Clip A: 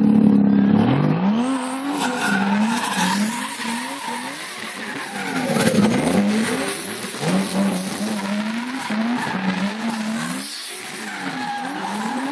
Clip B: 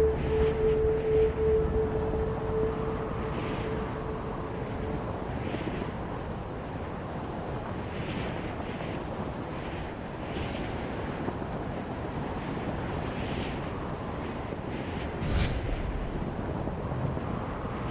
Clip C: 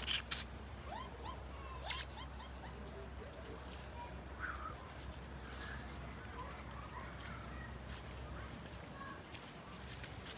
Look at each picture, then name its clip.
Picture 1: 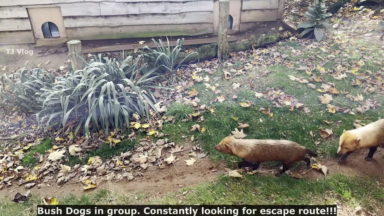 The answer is C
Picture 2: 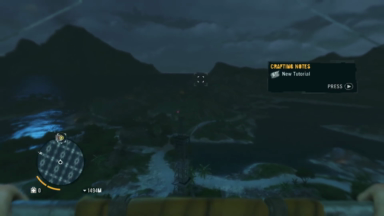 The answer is B